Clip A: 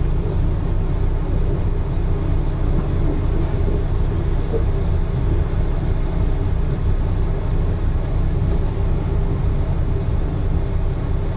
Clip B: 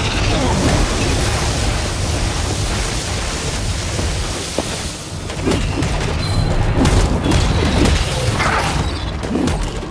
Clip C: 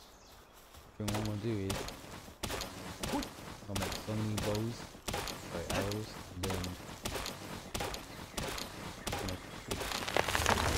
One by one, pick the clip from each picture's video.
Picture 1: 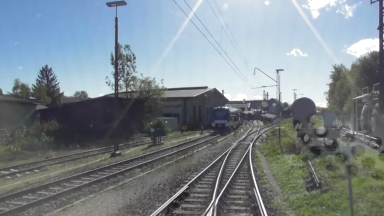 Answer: A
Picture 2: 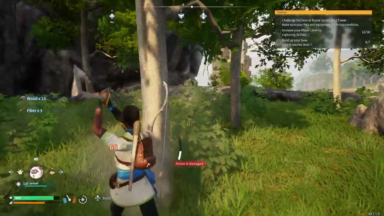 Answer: C